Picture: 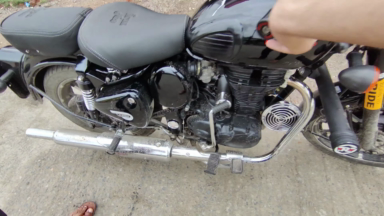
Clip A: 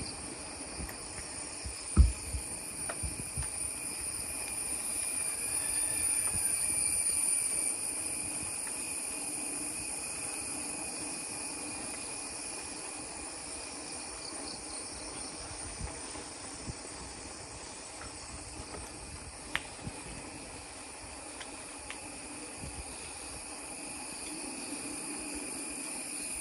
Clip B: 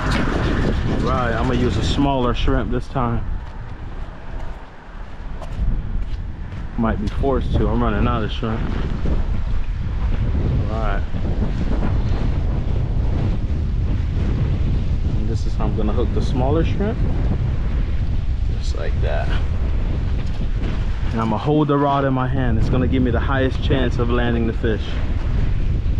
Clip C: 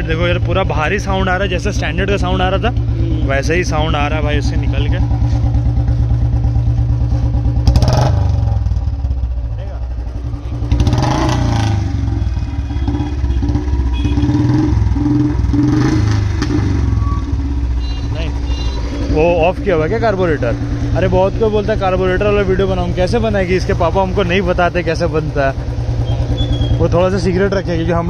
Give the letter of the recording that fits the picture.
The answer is C